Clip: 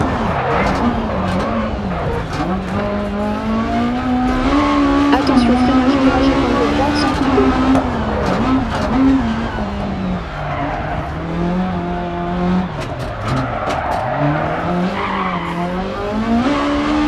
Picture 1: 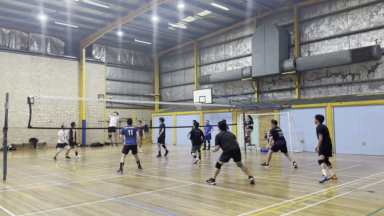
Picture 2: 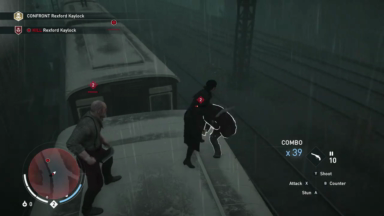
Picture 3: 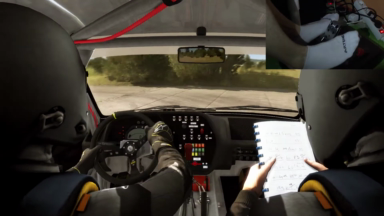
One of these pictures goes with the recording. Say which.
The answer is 3